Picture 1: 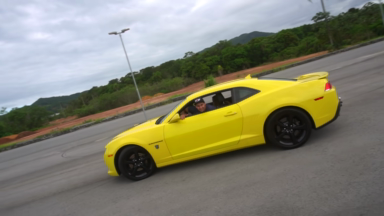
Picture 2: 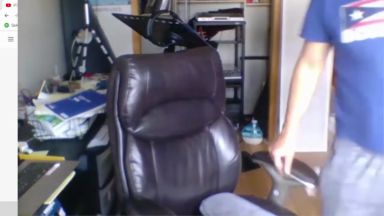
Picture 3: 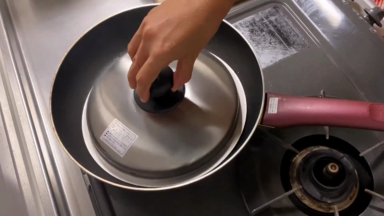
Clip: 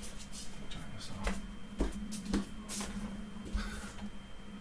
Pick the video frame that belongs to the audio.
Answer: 2